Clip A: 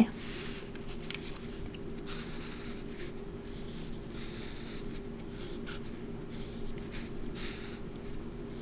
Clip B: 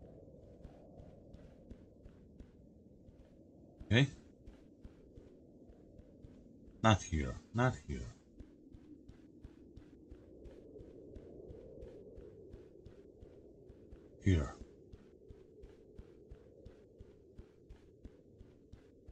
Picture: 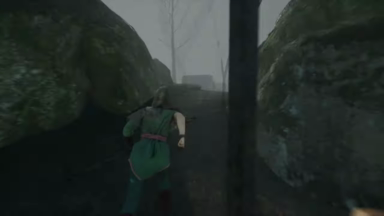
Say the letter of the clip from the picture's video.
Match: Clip B